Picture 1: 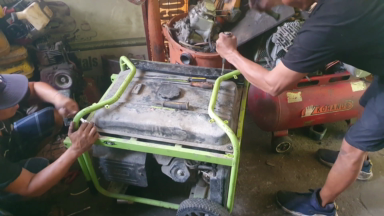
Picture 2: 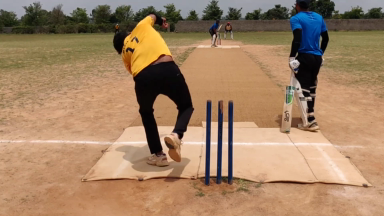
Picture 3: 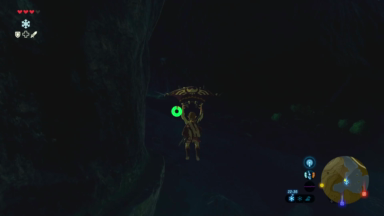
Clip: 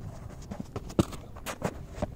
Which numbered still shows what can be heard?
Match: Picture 2